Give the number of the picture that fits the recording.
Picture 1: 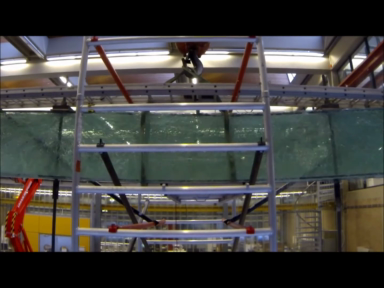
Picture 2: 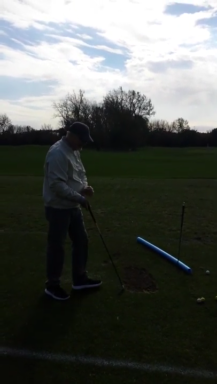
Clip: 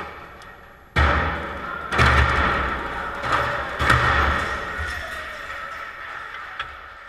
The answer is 1